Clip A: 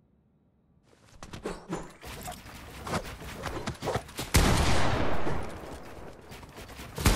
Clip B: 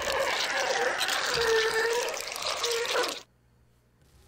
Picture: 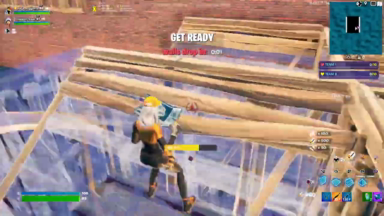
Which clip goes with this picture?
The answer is A